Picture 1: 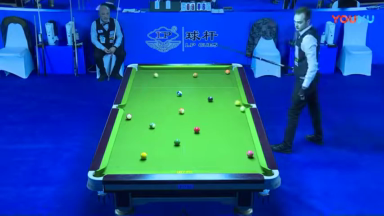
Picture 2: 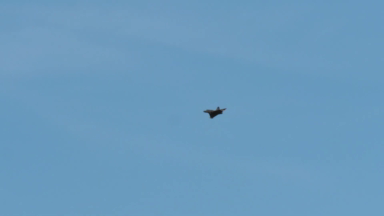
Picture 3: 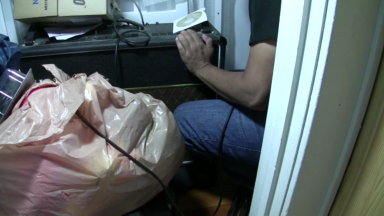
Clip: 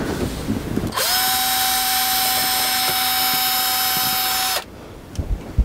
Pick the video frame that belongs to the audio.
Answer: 3